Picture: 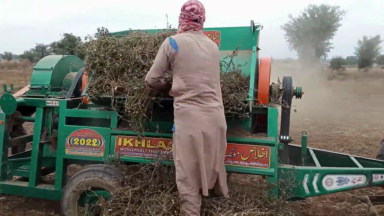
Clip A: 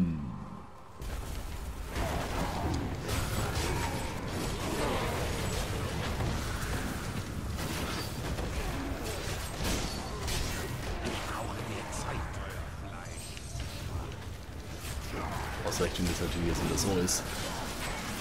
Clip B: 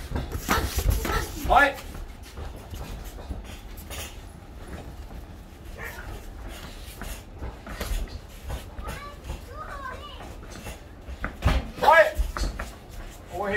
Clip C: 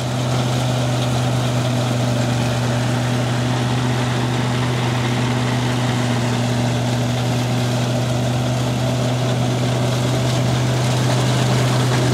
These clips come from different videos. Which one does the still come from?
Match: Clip C